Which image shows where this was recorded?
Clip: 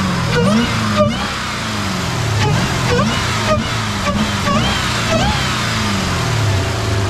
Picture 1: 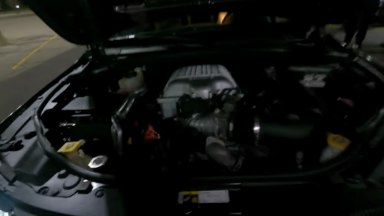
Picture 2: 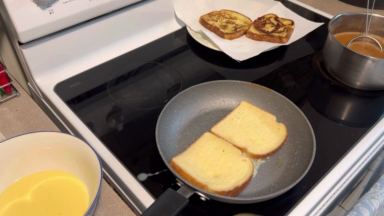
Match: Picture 1